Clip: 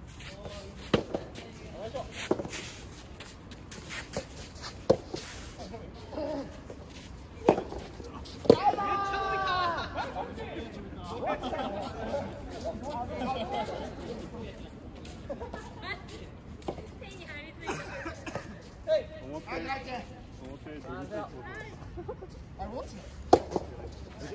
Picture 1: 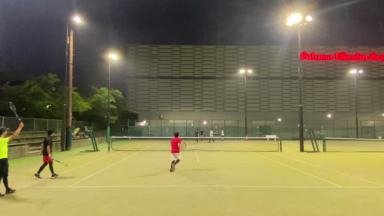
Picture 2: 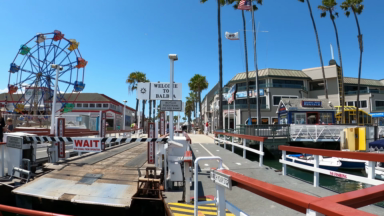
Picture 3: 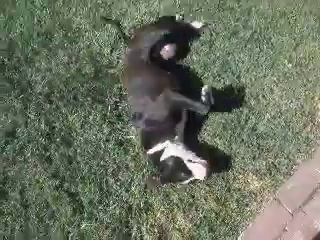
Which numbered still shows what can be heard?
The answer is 1